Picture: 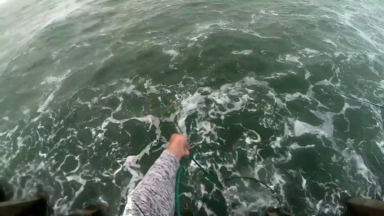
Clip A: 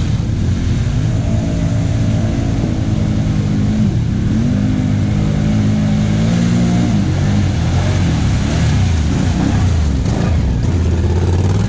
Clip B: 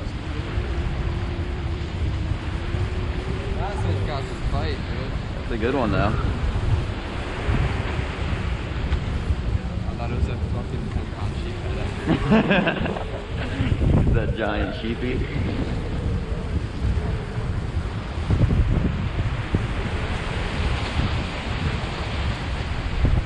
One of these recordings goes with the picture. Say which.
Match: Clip B